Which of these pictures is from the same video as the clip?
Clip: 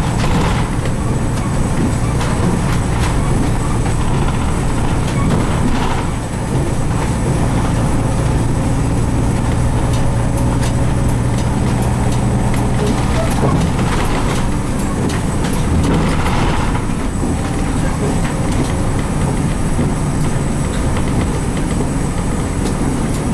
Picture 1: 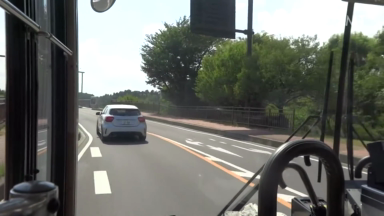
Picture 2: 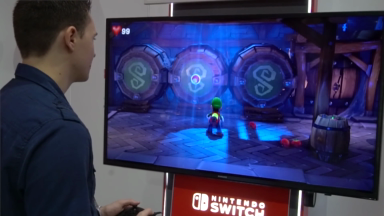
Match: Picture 1